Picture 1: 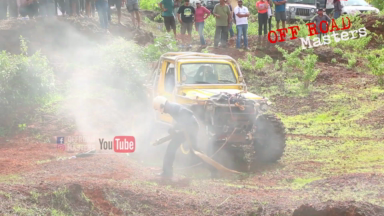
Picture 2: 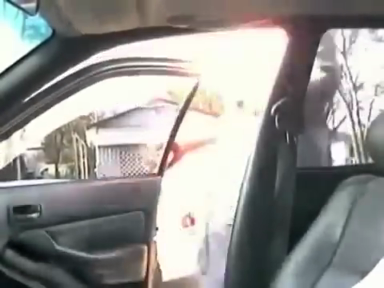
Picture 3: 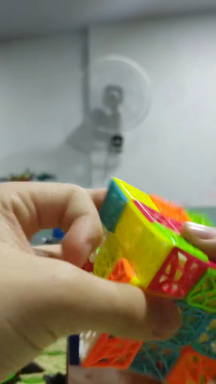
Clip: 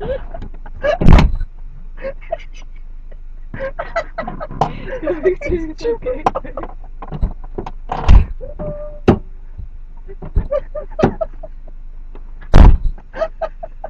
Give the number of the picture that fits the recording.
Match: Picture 2